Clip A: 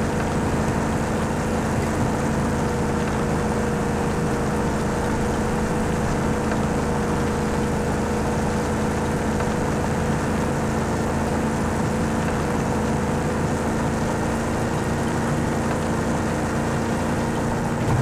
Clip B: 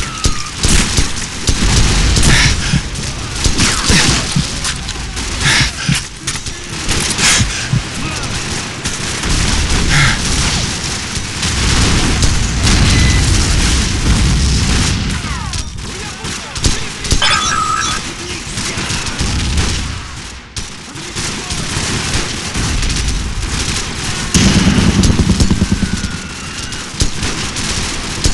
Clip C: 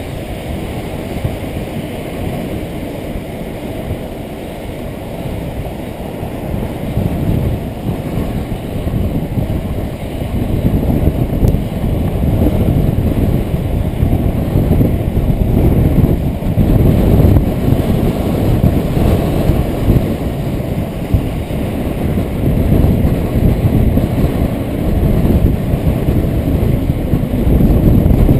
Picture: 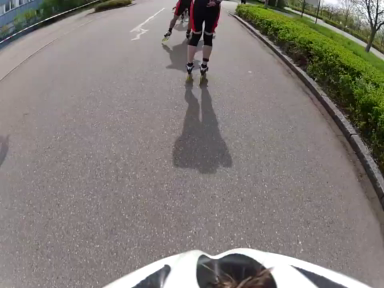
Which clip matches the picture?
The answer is C